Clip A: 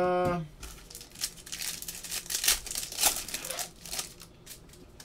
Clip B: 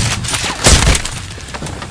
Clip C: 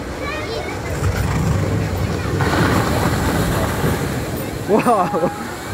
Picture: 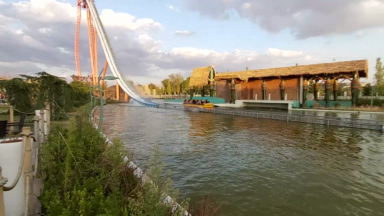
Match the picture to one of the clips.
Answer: C